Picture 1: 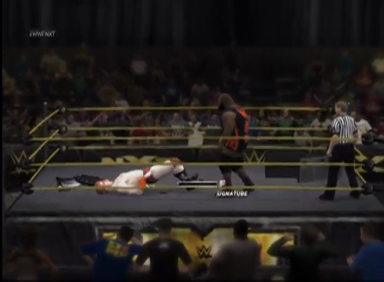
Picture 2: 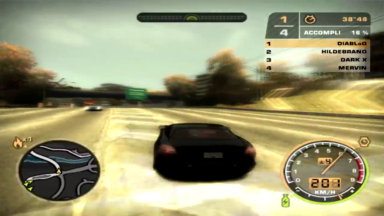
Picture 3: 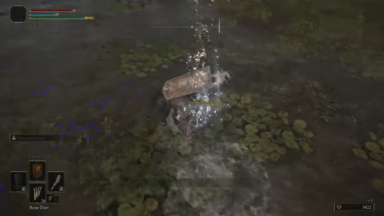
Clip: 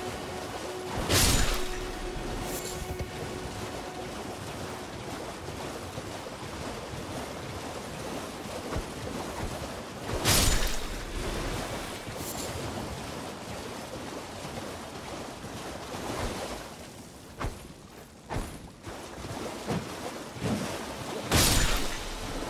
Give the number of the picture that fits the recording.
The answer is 3